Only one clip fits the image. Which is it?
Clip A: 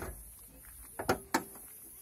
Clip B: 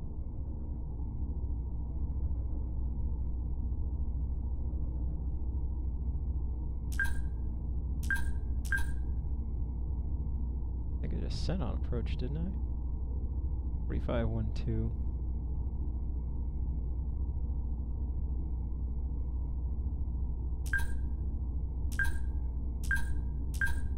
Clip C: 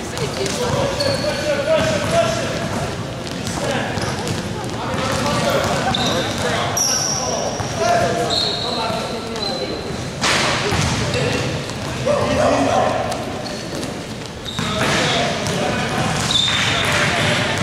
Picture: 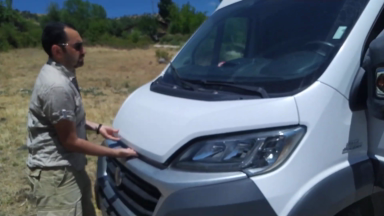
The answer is A